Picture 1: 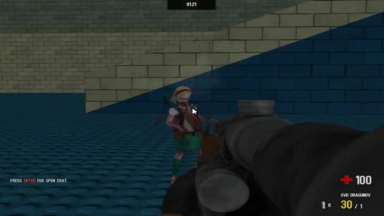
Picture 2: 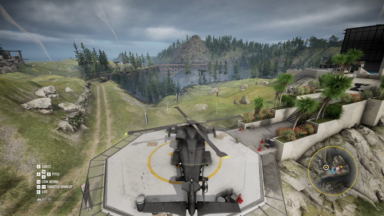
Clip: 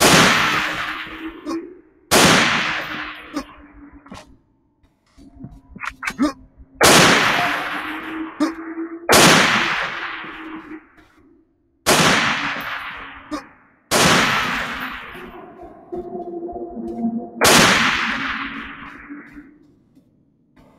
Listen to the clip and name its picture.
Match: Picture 1